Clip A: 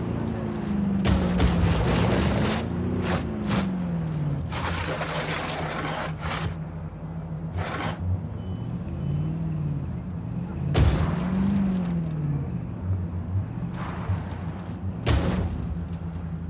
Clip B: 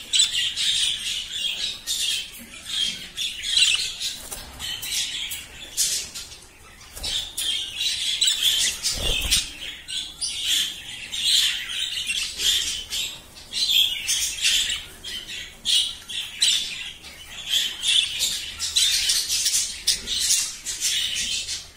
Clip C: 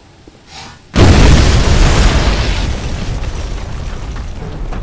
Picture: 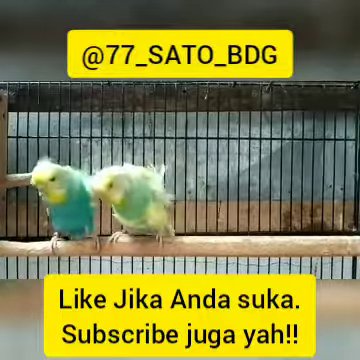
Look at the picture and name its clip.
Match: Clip B